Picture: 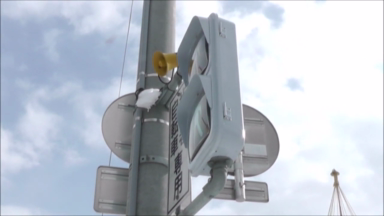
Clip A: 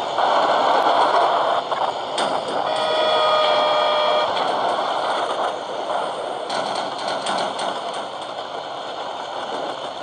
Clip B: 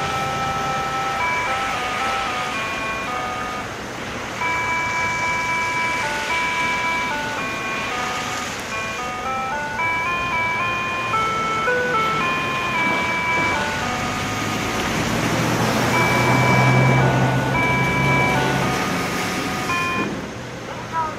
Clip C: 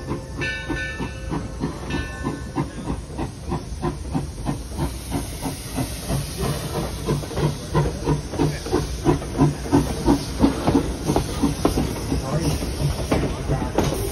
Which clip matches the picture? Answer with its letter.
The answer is B